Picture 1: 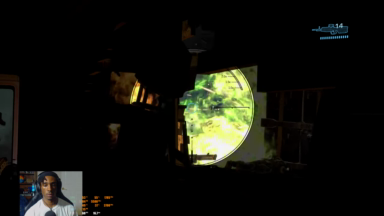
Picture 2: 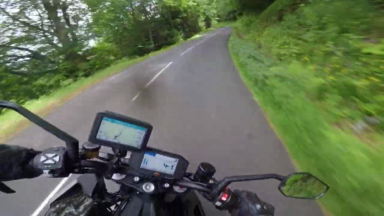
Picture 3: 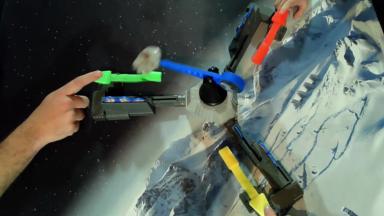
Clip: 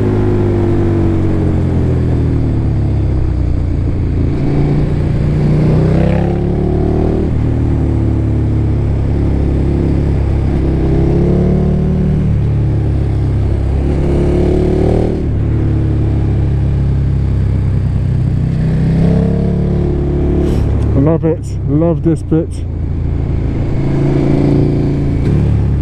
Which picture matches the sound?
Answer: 2